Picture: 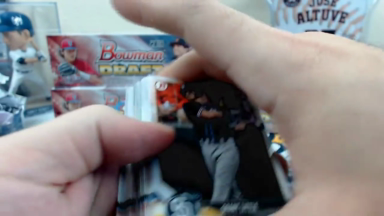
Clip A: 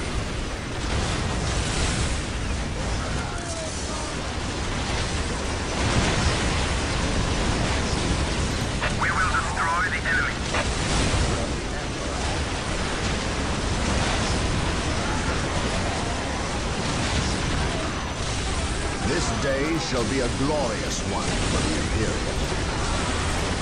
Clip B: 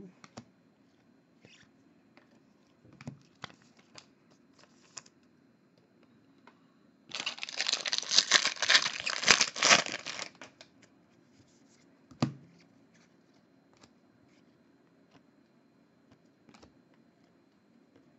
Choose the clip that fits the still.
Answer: B